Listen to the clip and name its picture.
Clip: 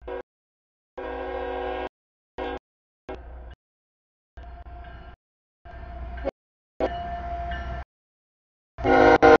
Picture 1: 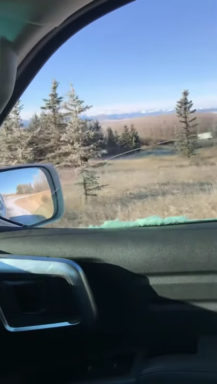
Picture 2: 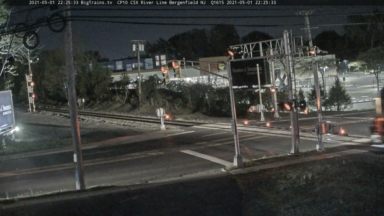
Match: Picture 2